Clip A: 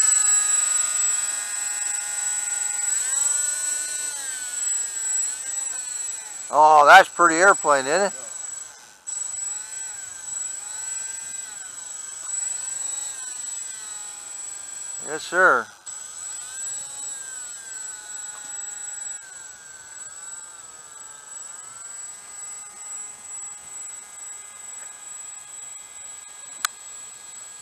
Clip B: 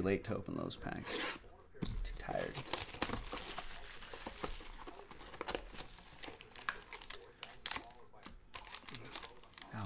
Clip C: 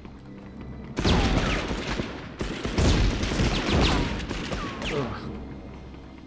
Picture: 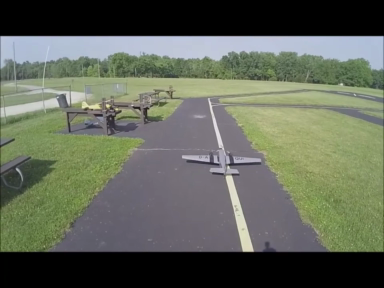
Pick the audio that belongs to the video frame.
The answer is A